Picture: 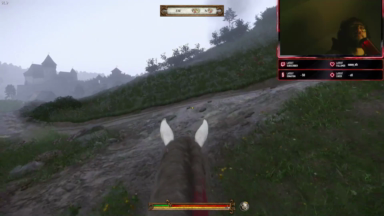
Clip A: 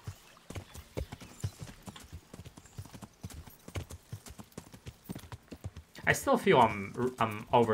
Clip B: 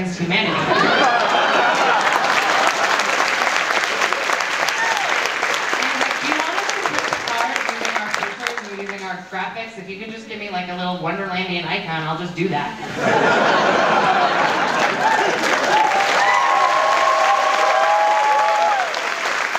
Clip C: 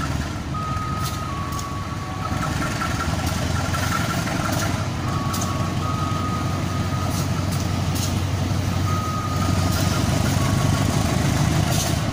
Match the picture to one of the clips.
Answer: A